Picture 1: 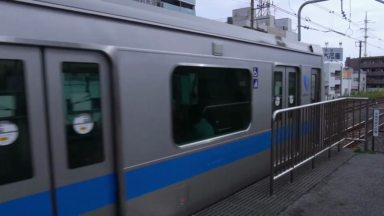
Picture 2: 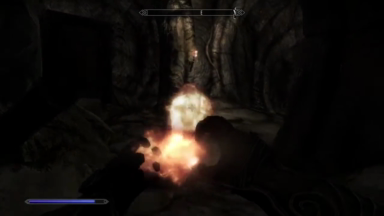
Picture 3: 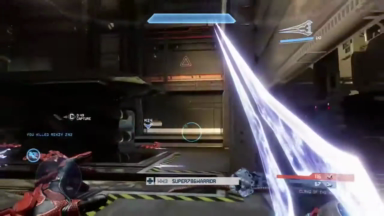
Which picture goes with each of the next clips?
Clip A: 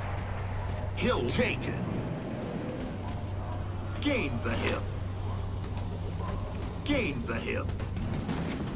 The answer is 3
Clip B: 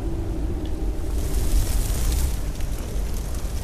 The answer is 2